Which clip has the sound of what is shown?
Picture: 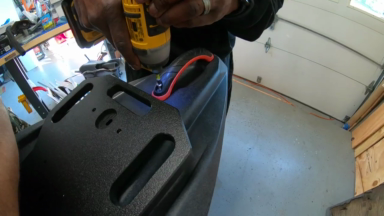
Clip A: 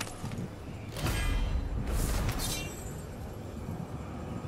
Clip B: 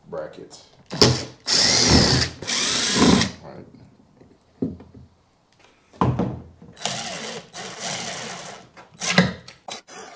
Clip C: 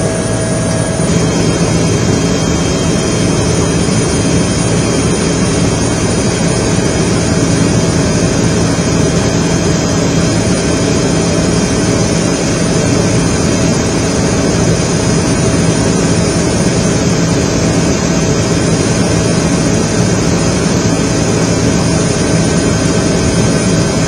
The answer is B